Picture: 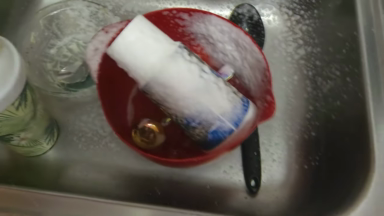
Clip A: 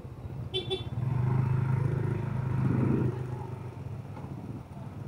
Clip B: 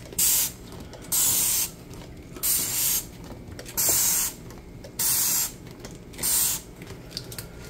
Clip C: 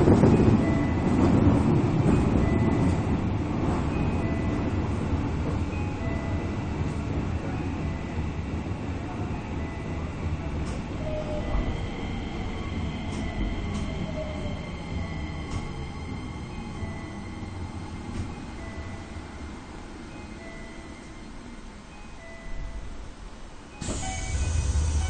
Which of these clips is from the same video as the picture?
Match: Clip B